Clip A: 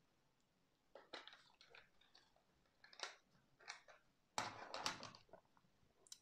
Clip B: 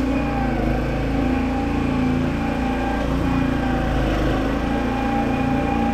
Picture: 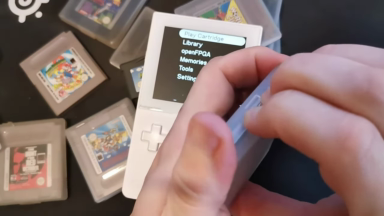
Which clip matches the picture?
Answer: A